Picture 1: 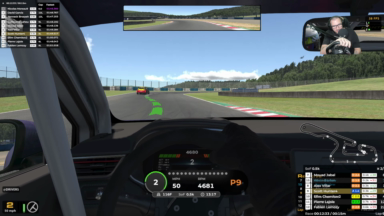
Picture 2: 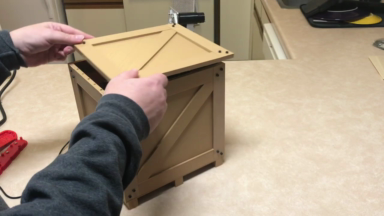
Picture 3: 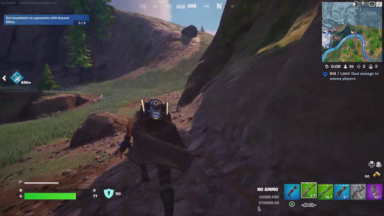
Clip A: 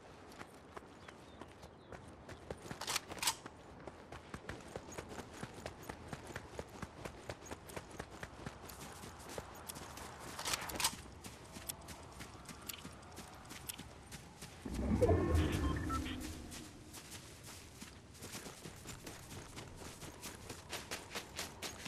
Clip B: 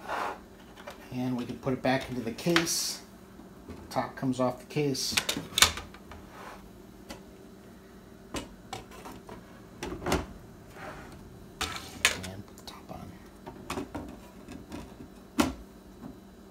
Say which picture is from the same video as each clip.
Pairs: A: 3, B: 2